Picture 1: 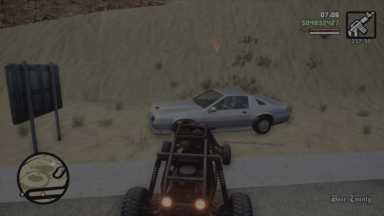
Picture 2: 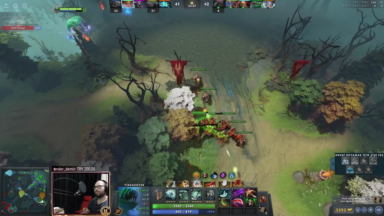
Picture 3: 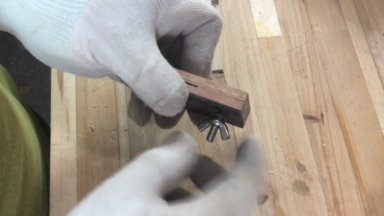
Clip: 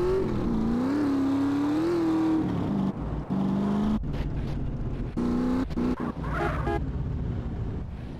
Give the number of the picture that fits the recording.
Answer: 1